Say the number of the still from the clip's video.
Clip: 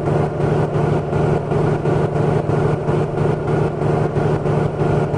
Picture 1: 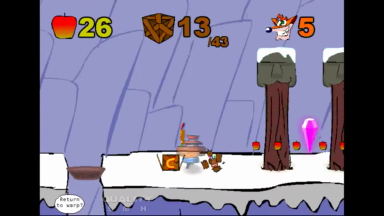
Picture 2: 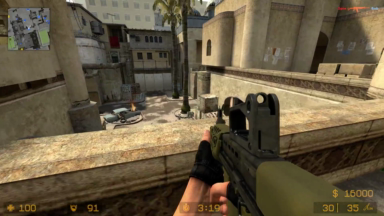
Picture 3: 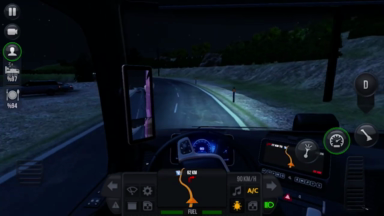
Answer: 3